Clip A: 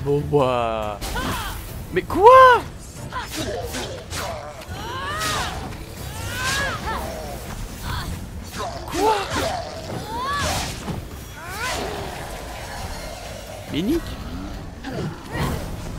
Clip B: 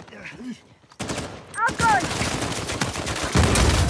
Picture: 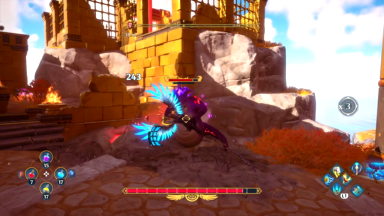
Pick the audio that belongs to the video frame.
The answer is A